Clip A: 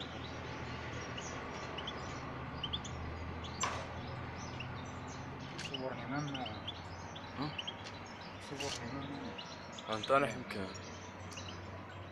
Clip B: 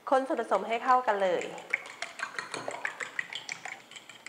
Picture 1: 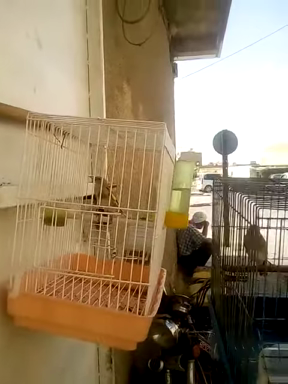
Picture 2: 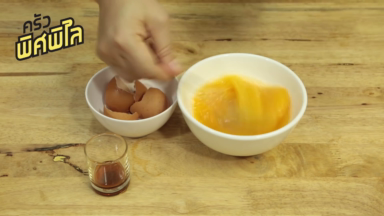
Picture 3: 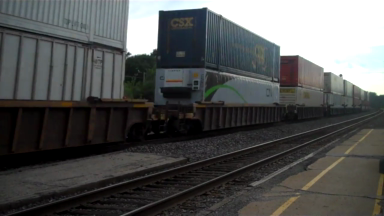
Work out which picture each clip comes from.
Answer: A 1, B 2